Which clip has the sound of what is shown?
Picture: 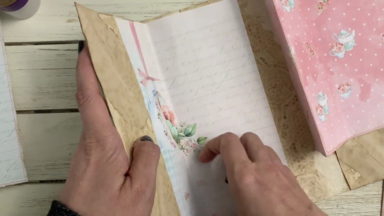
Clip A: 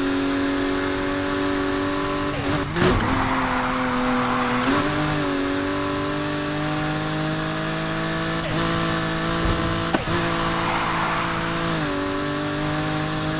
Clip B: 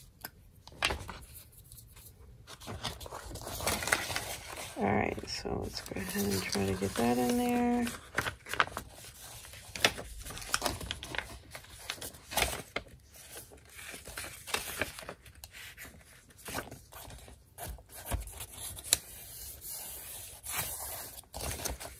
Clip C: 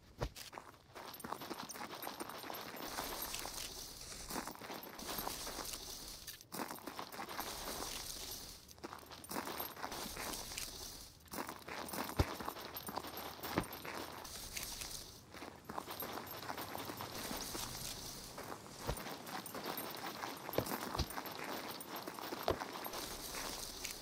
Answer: B